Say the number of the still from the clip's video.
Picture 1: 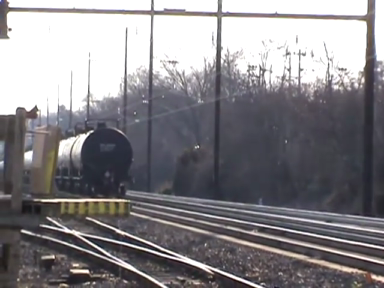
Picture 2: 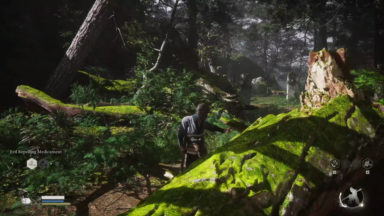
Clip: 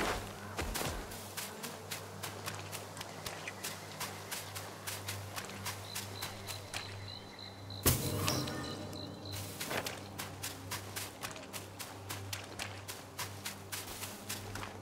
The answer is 2